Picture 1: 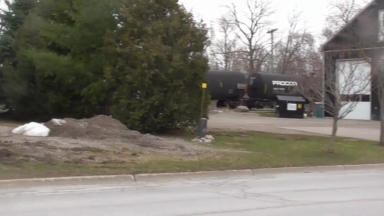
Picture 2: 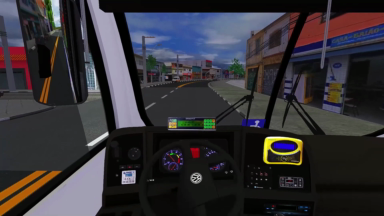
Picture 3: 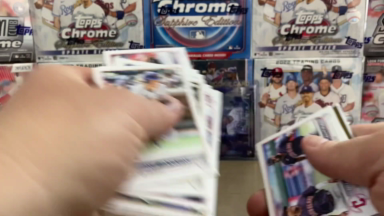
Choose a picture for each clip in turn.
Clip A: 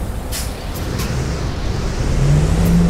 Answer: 2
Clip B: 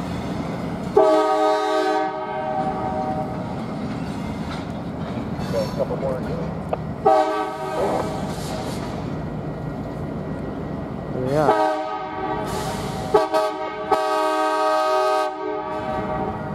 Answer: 1